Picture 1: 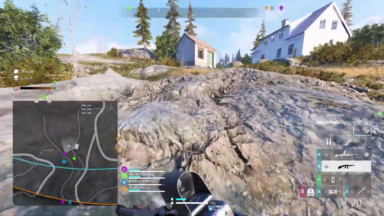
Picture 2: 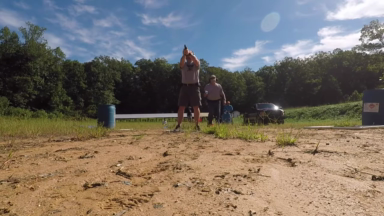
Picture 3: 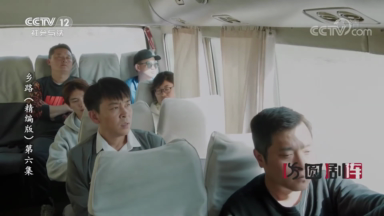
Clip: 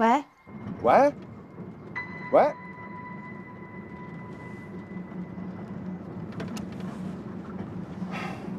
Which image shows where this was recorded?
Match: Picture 3